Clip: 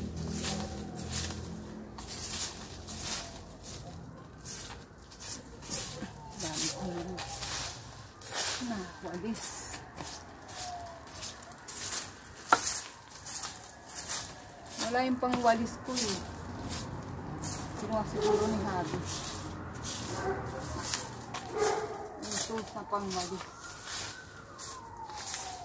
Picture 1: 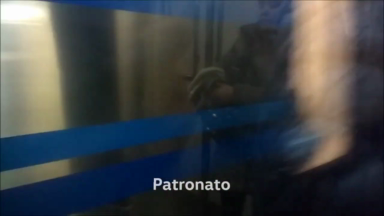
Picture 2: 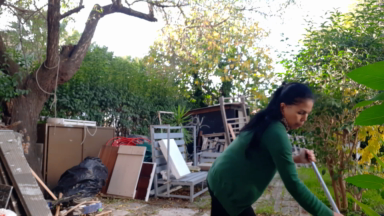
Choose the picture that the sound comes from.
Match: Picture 2